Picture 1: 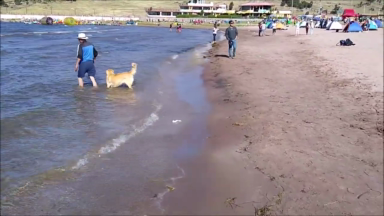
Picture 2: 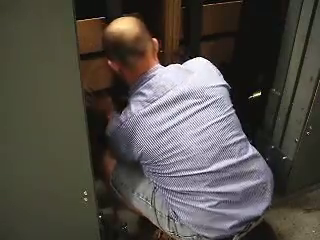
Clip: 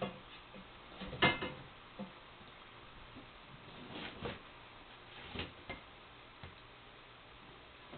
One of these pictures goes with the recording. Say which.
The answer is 2